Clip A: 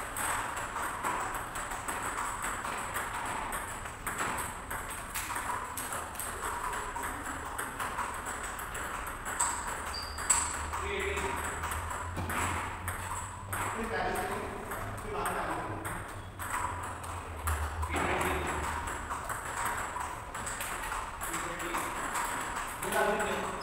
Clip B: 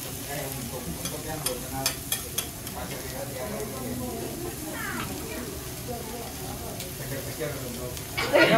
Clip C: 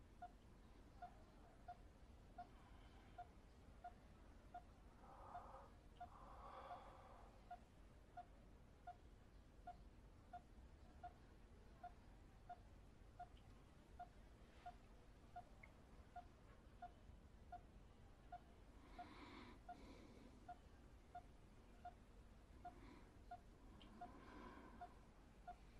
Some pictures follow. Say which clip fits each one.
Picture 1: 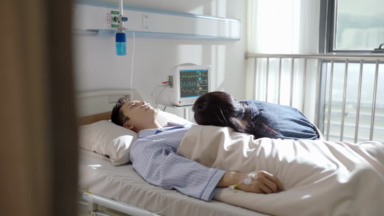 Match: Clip C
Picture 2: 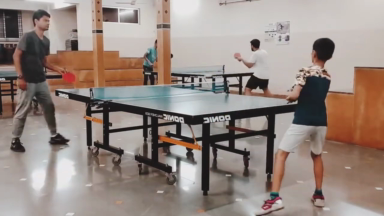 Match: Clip A